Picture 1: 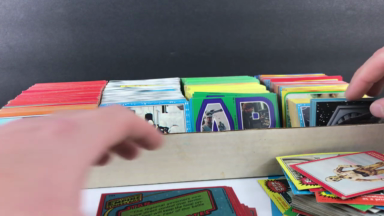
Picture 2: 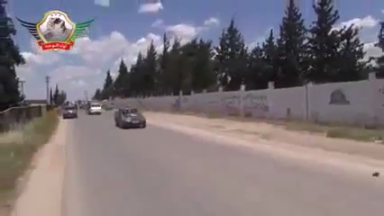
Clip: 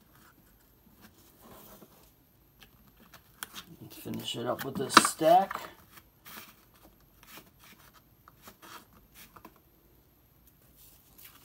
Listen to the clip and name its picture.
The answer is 1